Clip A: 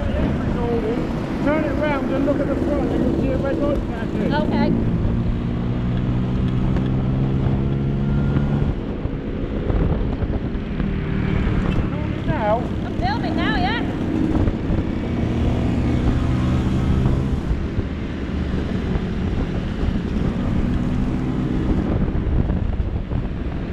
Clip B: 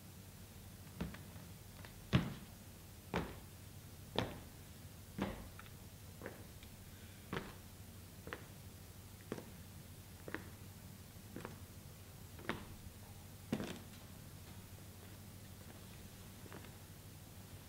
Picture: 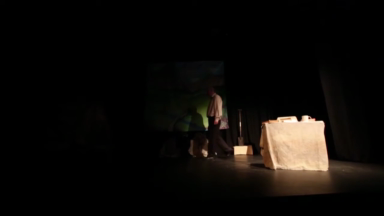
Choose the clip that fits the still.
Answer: B